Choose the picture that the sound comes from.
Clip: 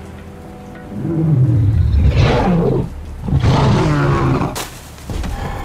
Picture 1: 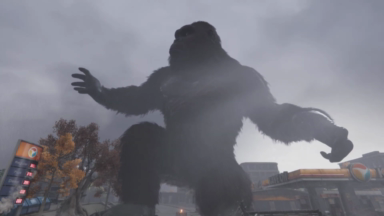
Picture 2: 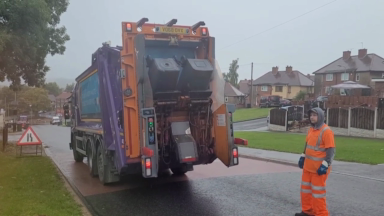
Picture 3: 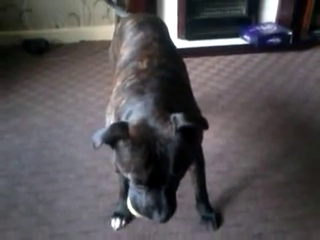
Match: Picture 1